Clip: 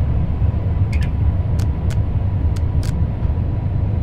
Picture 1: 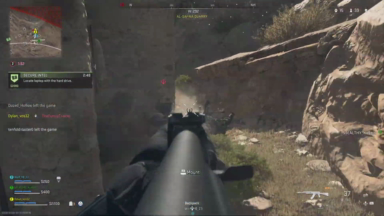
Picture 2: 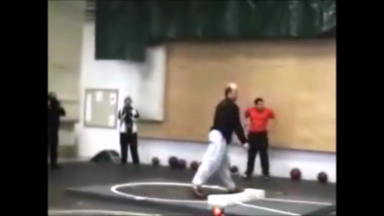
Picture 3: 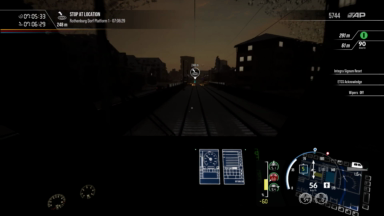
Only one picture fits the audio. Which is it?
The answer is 3